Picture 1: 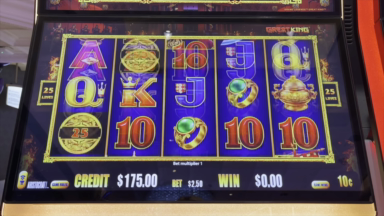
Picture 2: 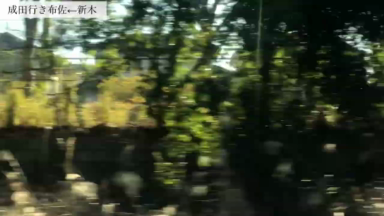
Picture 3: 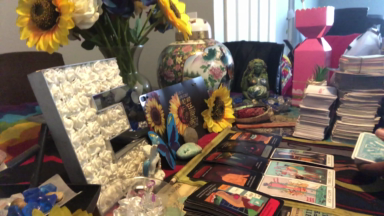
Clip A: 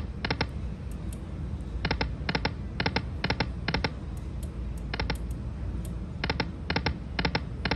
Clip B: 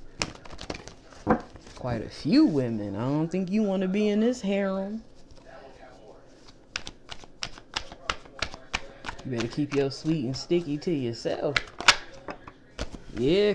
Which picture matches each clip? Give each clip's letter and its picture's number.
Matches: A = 1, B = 3